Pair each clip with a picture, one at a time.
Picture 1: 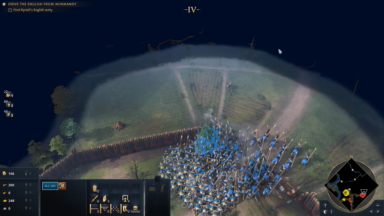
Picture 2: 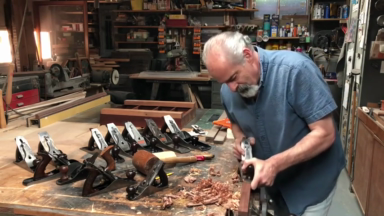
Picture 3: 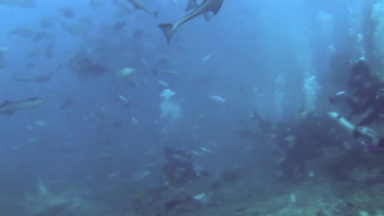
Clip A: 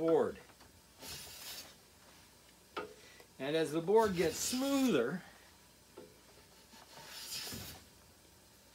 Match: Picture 2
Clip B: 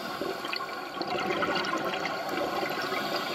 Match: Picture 3